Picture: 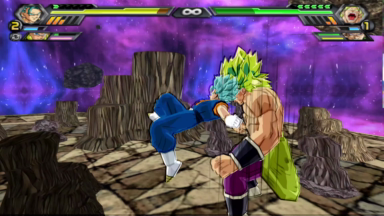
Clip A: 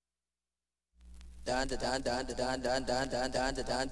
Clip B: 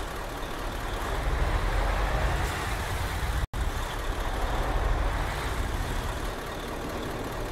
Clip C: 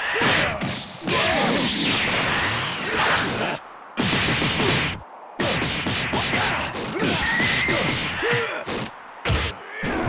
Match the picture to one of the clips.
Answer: C